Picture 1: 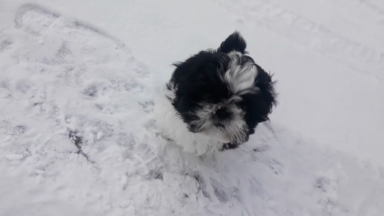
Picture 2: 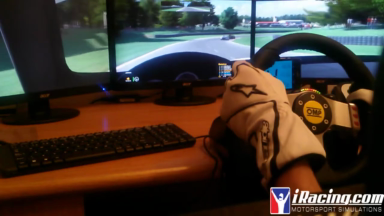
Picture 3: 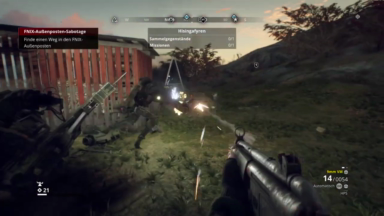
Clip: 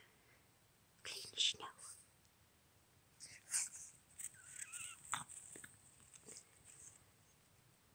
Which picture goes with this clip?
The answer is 1